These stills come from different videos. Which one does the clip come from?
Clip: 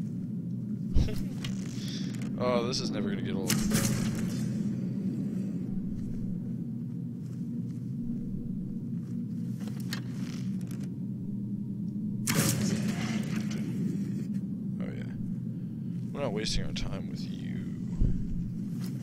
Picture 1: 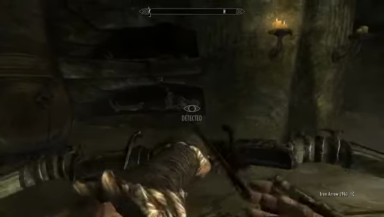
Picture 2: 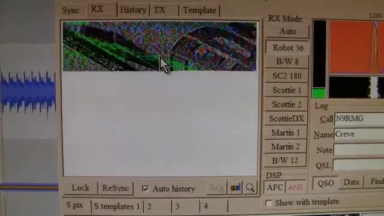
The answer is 1